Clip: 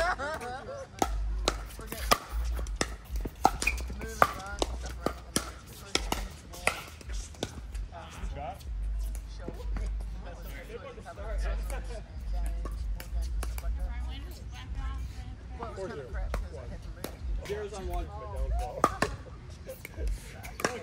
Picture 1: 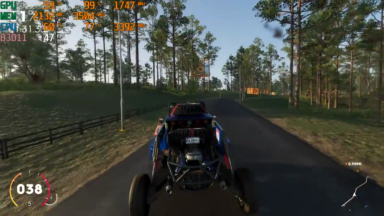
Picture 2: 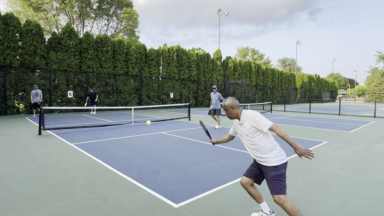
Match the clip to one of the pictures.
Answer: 2